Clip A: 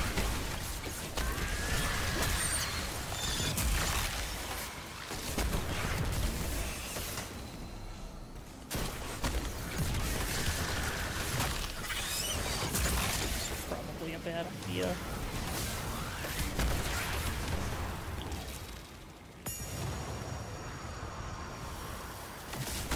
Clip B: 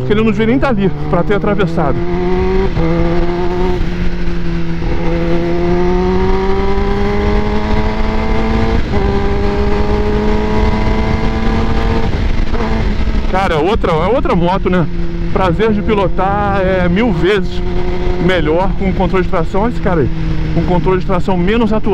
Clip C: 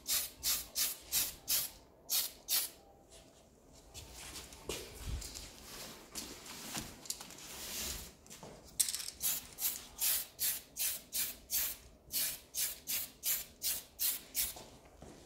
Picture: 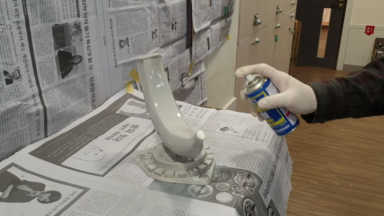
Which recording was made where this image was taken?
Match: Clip C